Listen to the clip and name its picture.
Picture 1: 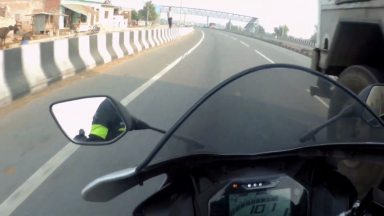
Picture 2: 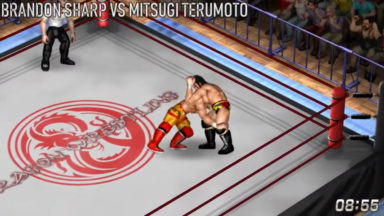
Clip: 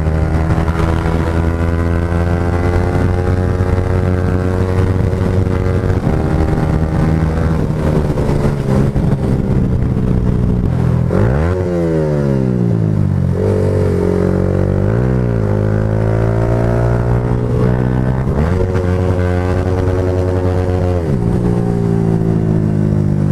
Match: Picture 1